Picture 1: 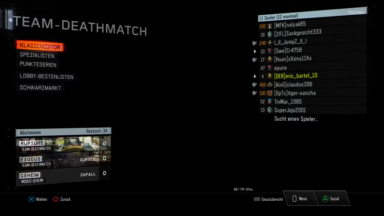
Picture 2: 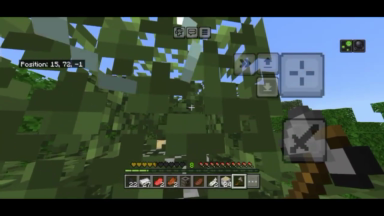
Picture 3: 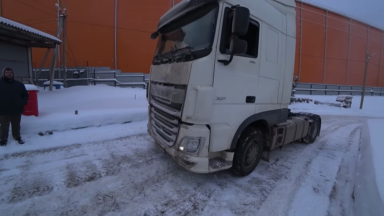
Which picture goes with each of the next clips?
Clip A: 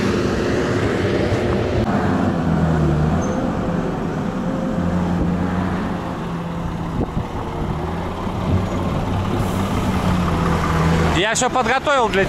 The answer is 3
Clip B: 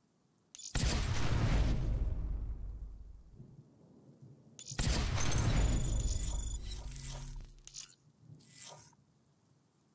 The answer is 1